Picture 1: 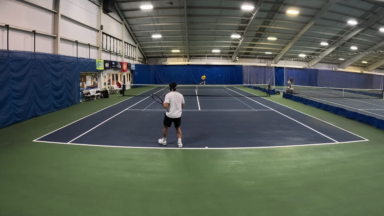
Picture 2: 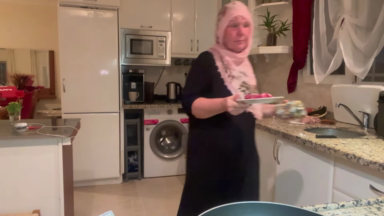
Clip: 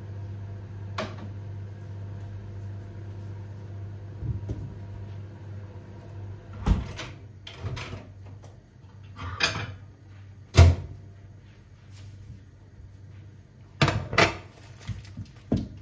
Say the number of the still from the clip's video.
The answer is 2